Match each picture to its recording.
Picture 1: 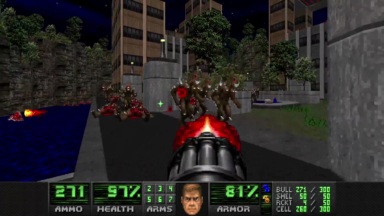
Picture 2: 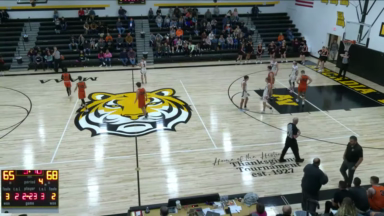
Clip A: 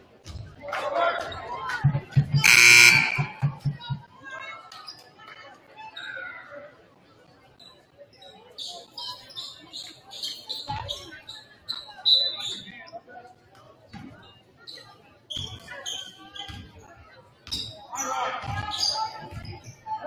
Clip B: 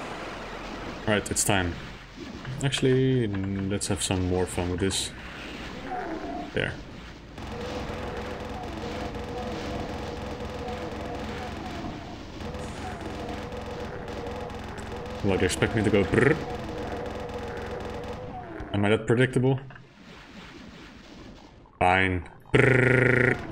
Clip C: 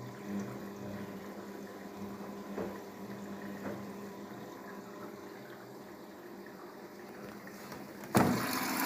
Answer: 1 B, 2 A